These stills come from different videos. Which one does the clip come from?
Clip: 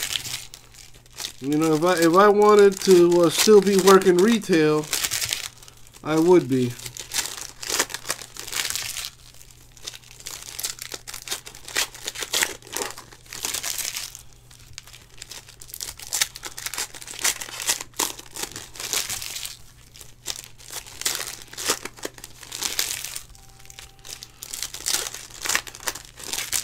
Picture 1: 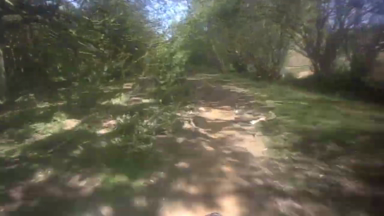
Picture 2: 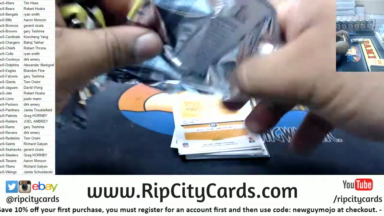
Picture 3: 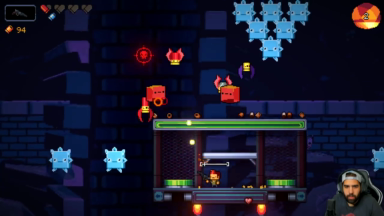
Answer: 2